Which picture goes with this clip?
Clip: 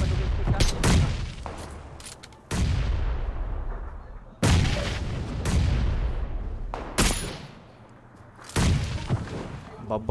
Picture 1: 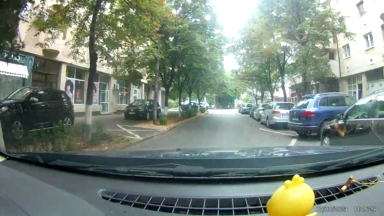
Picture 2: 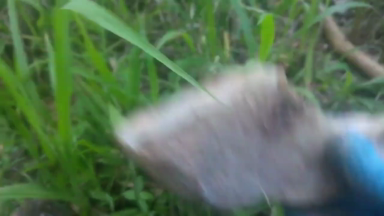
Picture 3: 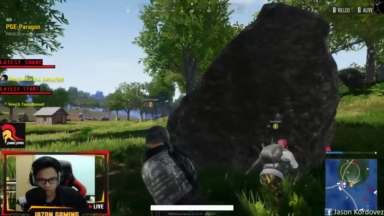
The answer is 3